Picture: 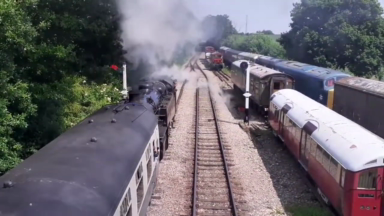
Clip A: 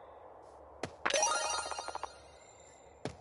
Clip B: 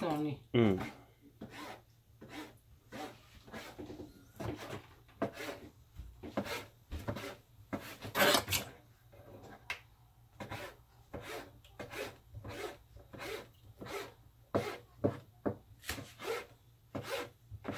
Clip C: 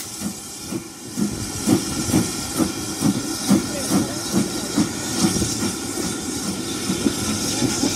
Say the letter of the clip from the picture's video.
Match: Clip C